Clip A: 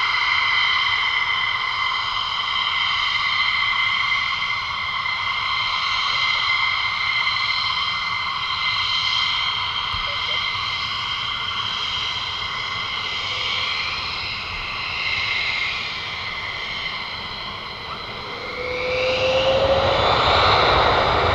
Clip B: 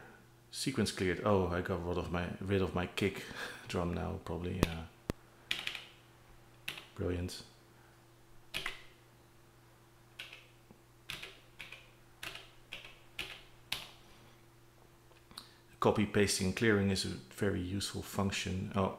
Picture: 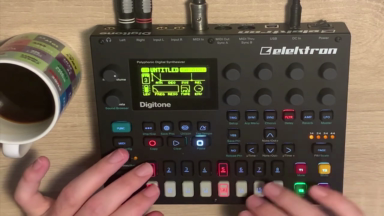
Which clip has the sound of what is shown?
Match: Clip B